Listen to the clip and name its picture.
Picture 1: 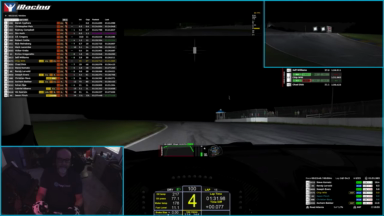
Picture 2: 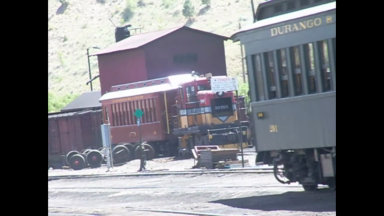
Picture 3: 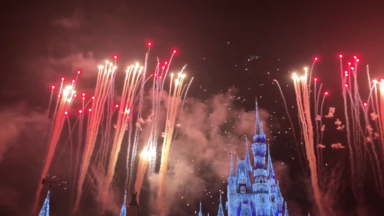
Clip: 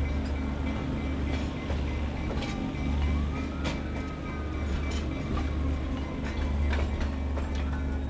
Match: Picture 2